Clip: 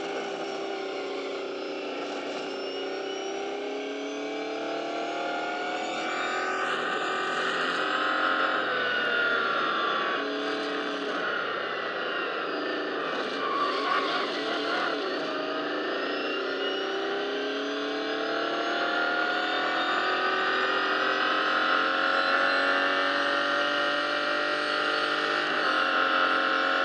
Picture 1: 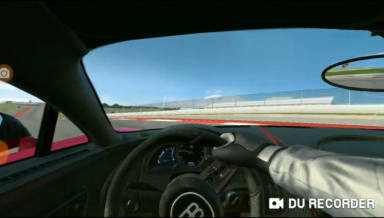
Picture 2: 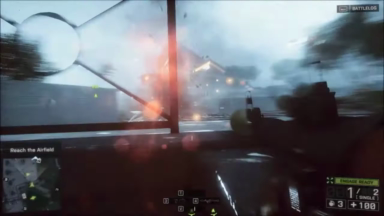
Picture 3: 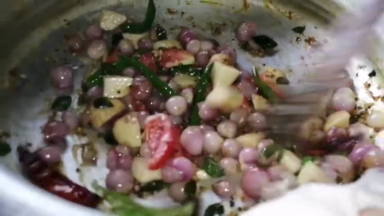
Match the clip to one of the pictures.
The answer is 1